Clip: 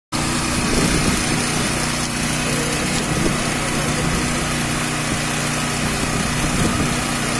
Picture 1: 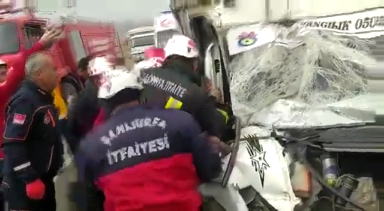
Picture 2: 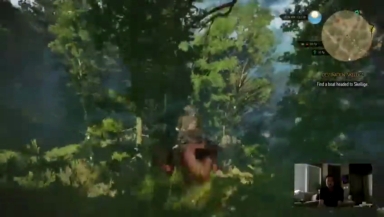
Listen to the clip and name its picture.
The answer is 1